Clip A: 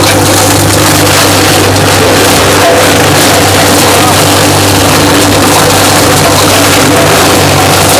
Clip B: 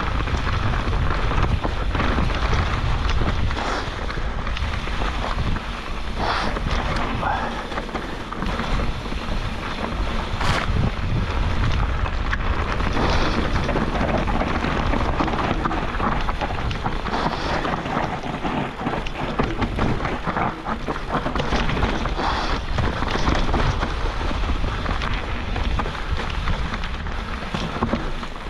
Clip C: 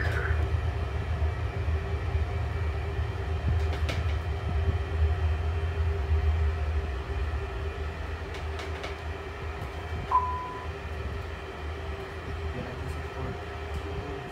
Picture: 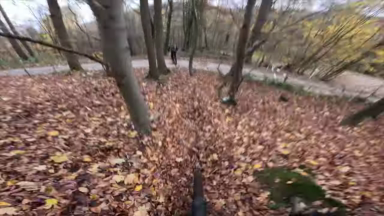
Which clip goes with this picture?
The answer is B